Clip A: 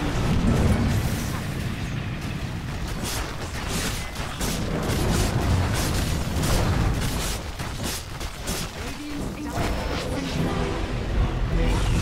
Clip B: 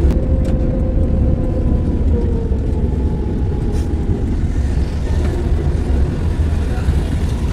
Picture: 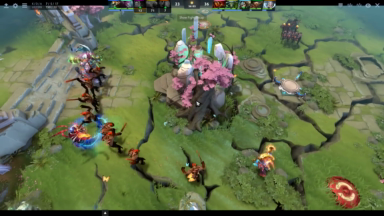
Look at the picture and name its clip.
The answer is A